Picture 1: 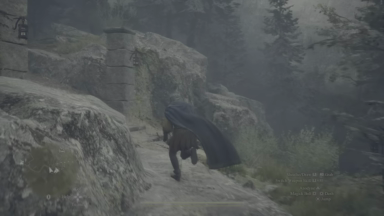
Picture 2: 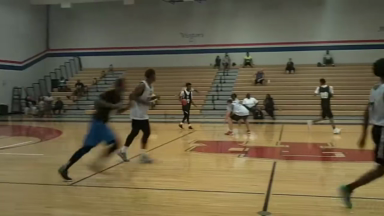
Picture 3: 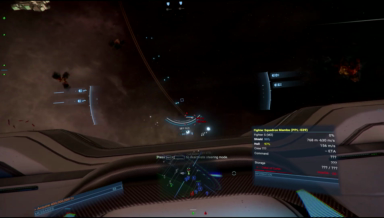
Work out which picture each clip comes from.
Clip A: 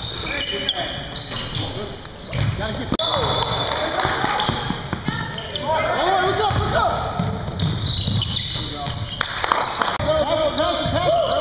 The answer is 2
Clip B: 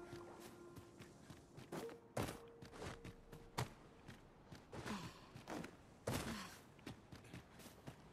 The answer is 1